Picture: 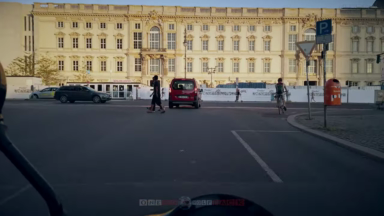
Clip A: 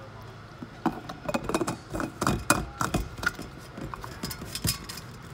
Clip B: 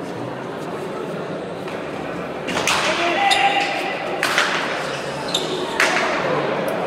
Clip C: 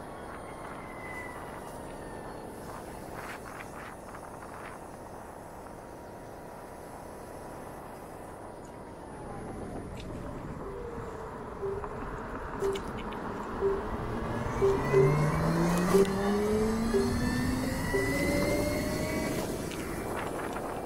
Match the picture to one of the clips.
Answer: C